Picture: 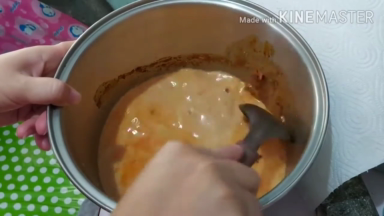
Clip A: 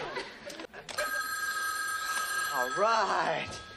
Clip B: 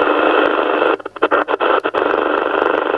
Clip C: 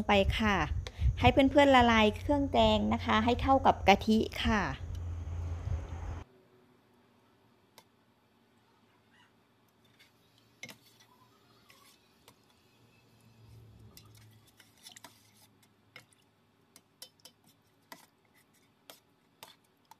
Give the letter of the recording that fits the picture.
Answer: C